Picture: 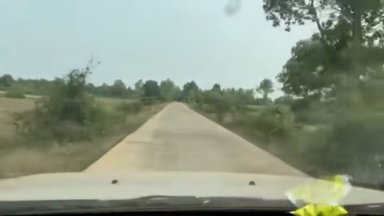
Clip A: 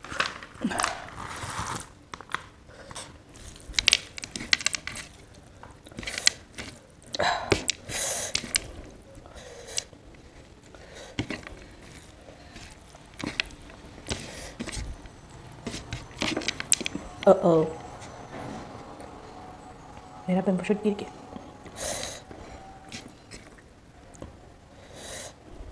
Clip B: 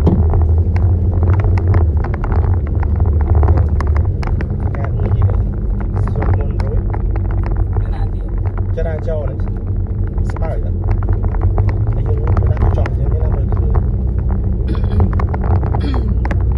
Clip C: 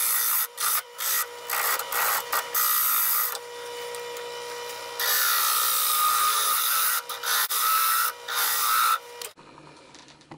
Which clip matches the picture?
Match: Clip B